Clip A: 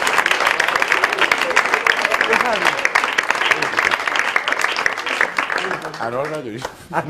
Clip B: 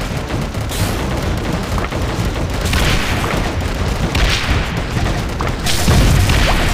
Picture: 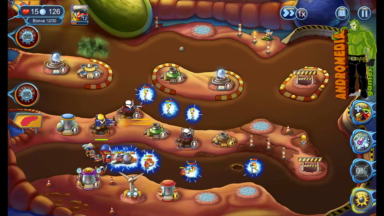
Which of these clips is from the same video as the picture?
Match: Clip B